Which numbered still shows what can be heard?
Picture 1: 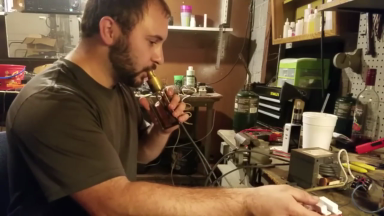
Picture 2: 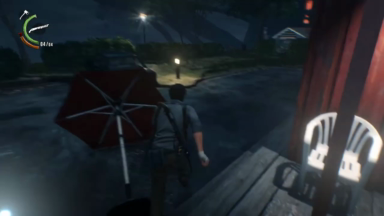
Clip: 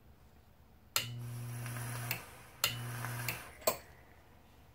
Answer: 1